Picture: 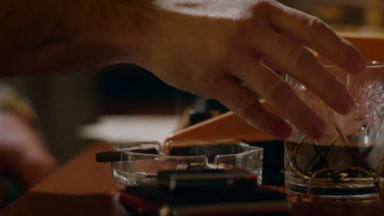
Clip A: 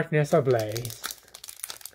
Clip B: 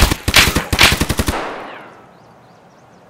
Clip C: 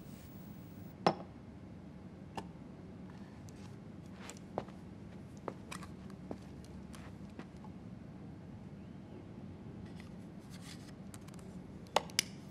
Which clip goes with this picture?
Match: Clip C